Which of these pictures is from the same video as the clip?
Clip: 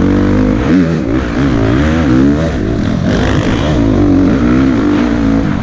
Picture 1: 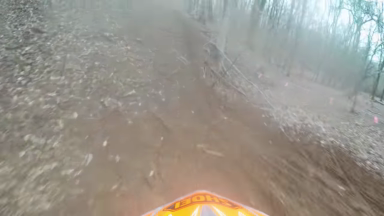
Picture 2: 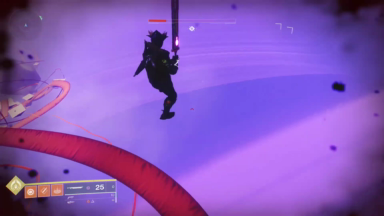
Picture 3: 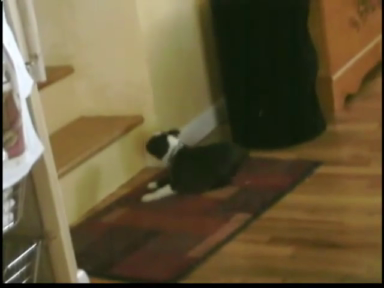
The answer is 1